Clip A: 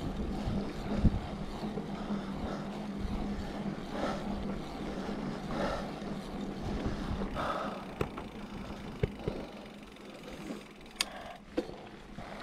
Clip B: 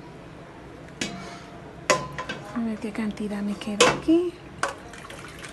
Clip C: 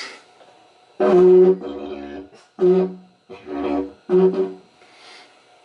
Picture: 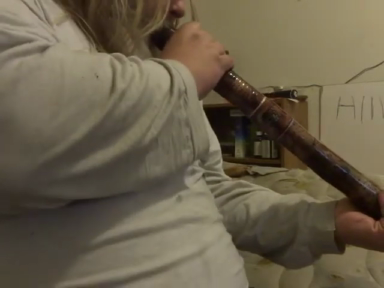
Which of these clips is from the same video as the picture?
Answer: C